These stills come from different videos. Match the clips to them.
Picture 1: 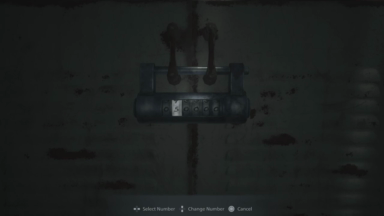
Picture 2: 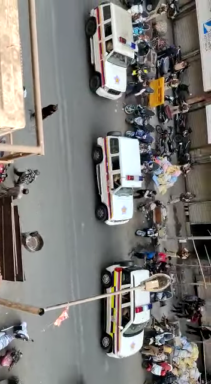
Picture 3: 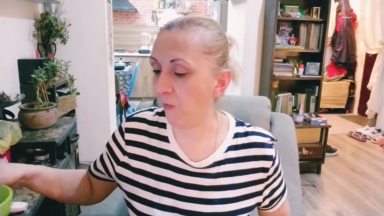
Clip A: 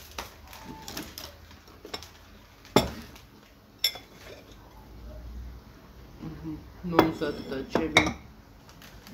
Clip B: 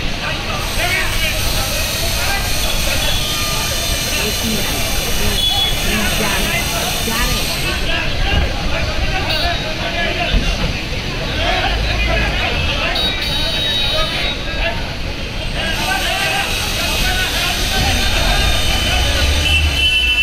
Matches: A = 3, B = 2